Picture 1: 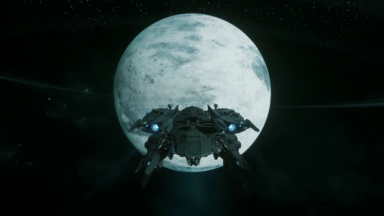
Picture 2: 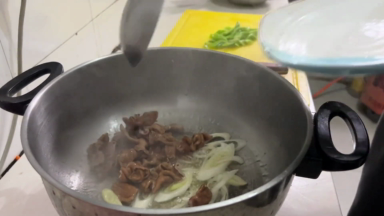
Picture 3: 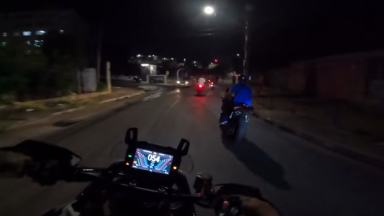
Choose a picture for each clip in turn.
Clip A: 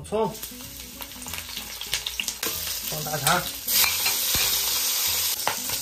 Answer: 2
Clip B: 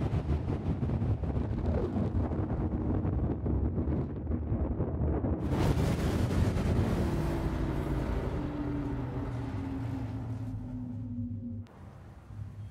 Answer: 1